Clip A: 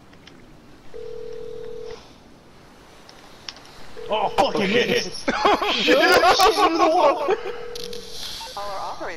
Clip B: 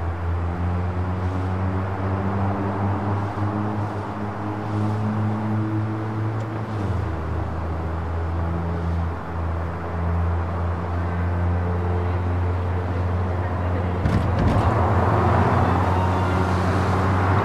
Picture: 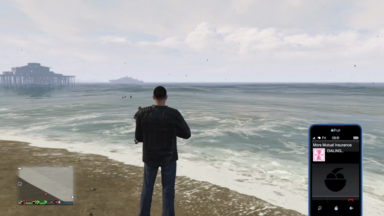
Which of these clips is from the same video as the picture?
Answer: A